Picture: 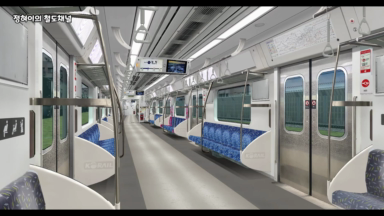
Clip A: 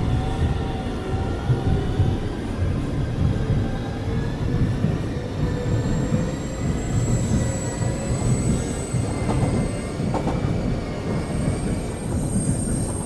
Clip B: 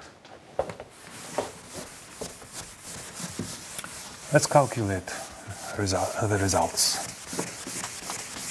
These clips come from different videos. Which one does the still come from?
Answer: A